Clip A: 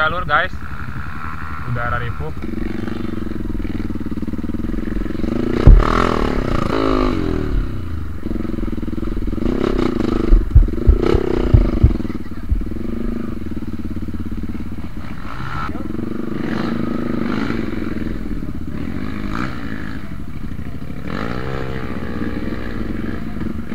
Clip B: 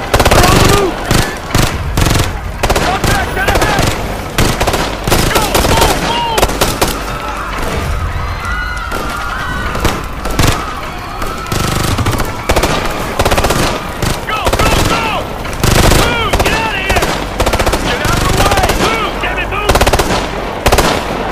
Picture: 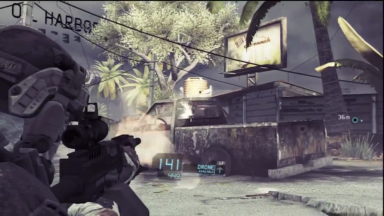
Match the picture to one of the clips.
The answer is B